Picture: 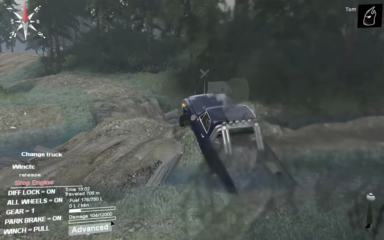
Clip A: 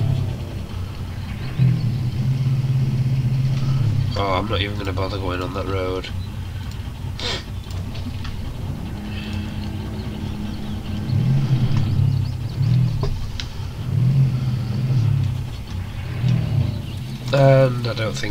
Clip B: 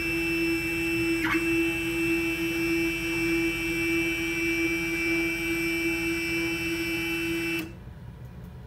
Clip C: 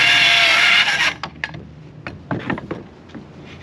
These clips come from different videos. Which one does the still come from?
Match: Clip A